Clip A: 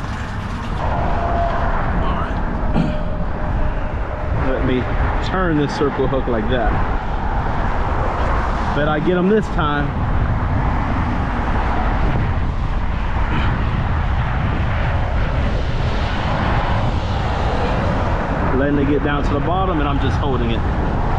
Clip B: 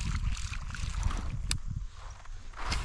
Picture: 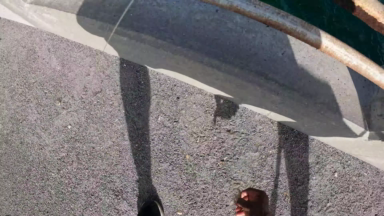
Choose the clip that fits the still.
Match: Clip A